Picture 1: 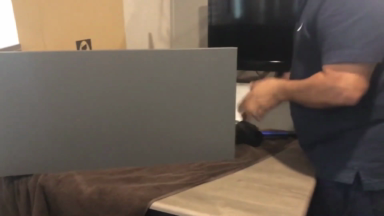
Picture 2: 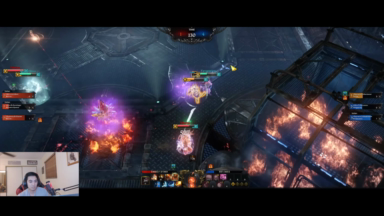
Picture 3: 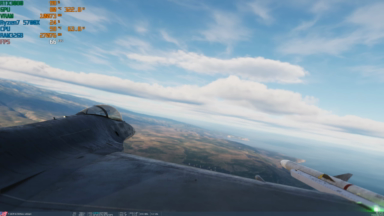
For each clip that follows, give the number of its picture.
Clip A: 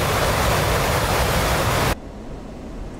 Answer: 3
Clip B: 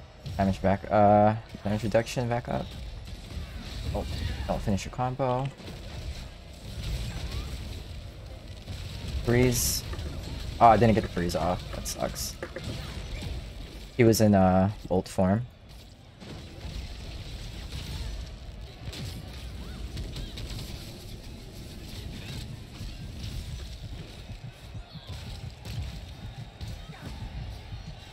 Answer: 2